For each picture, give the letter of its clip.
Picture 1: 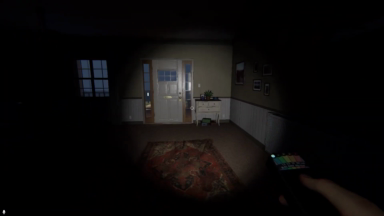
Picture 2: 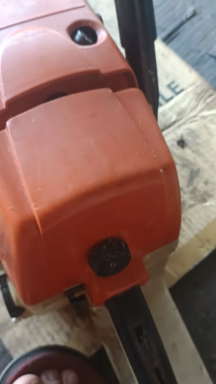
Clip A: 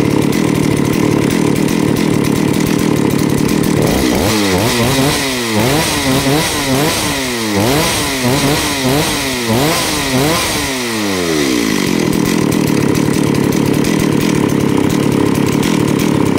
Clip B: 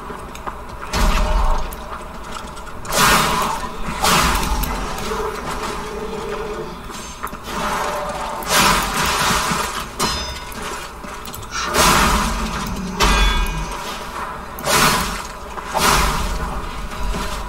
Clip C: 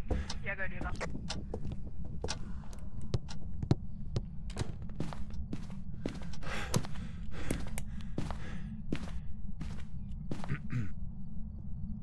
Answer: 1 C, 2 A